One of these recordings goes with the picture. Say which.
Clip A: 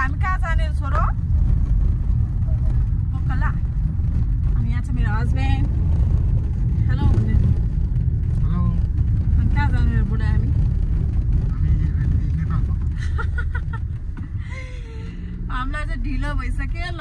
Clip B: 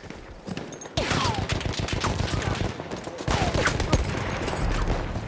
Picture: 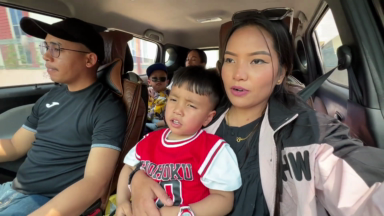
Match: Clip A